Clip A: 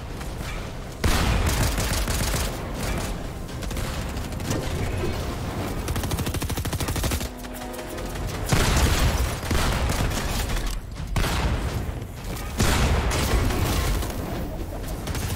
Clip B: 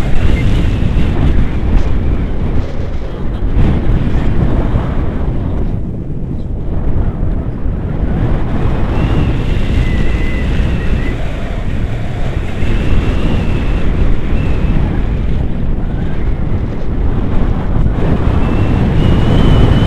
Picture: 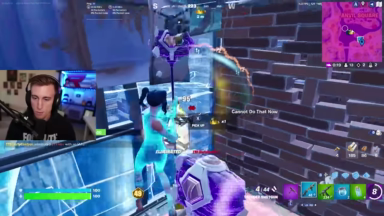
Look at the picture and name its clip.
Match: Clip A